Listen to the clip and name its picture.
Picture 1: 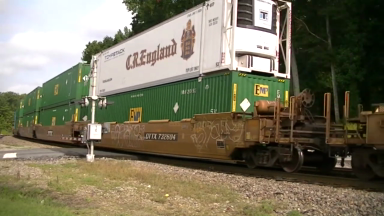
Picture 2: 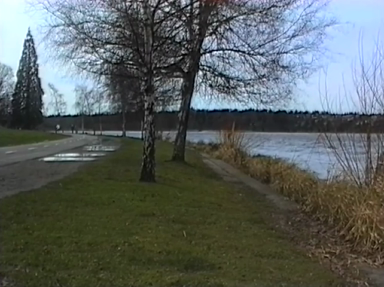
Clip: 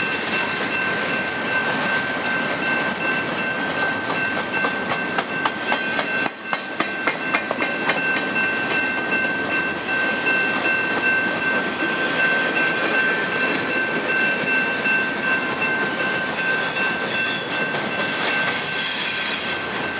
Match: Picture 1